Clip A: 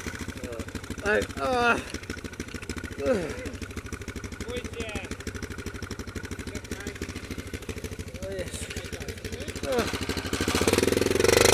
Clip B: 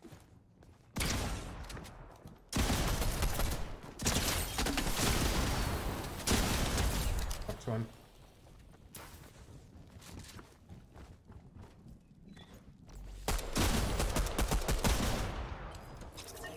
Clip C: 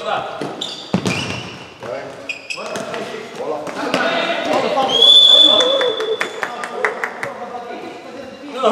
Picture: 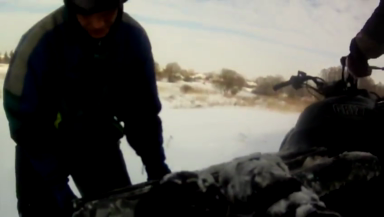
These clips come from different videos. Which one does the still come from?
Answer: A